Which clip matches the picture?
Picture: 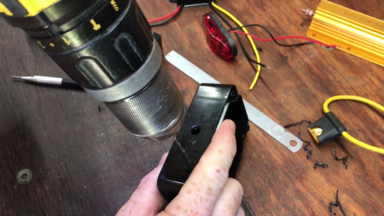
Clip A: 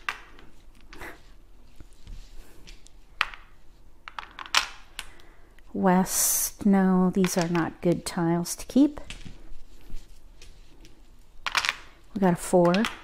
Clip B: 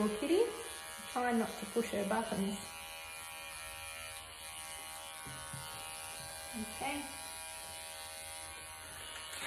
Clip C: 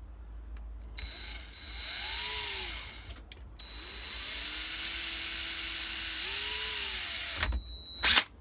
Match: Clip C